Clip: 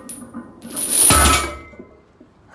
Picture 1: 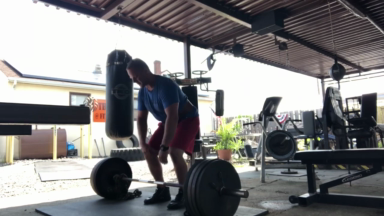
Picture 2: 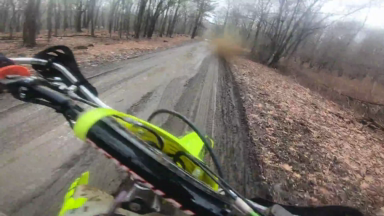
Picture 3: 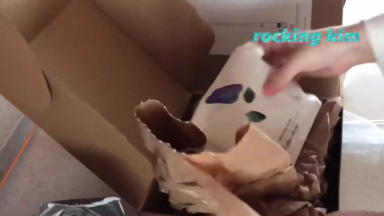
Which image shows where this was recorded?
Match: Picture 1